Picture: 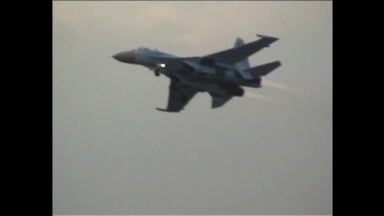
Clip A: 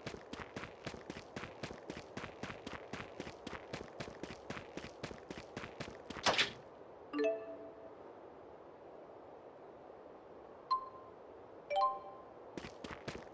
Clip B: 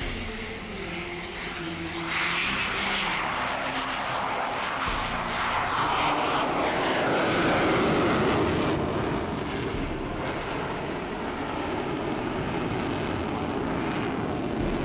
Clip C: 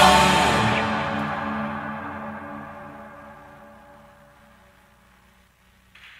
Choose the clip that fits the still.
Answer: B